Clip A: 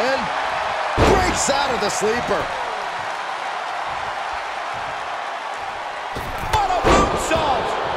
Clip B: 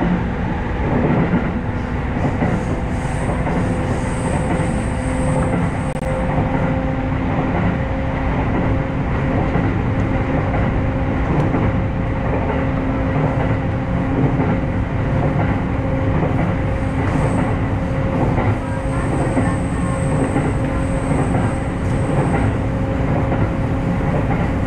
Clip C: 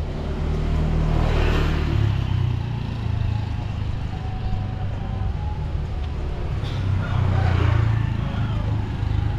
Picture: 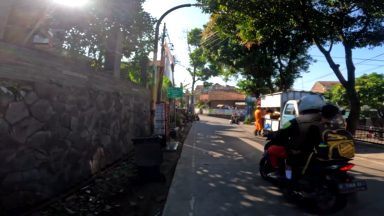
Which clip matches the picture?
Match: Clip C